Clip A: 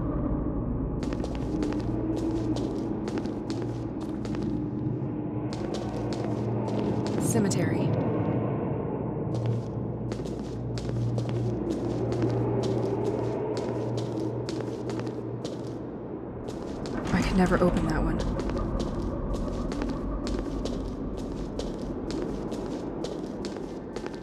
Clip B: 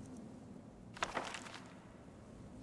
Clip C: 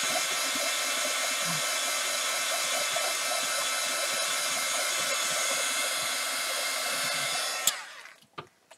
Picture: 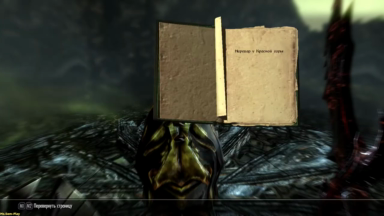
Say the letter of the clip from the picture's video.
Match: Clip B